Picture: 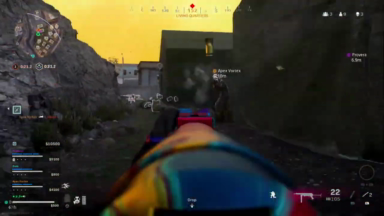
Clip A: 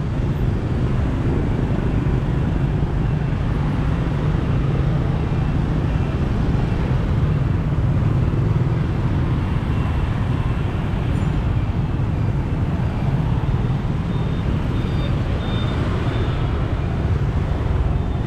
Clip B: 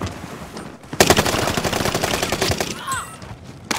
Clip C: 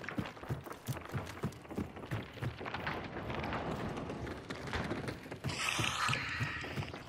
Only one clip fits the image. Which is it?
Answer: B